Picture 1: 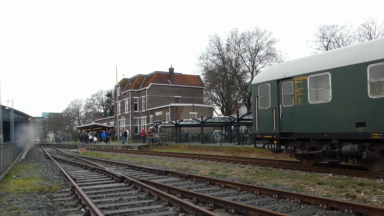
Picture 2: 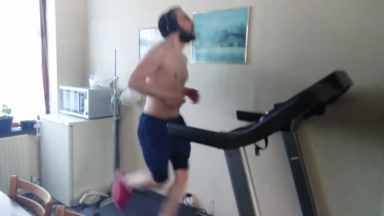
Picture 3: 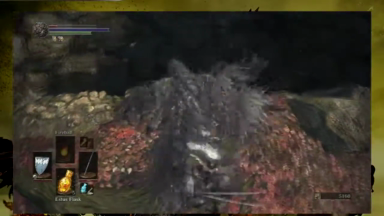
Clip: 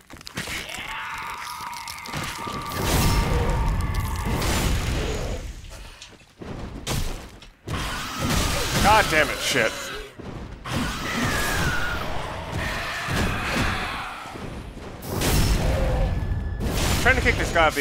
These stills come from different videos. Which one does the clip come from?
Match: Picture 3